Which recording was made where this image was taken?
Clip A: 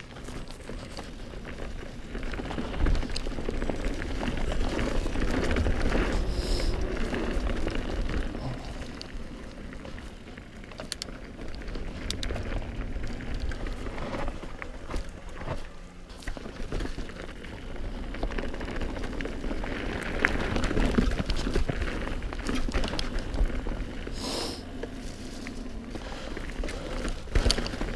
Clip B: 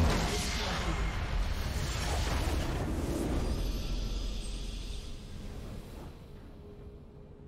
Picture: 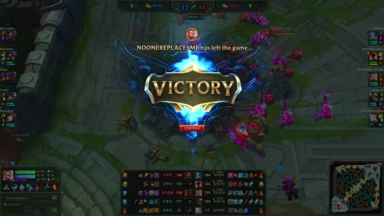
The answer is B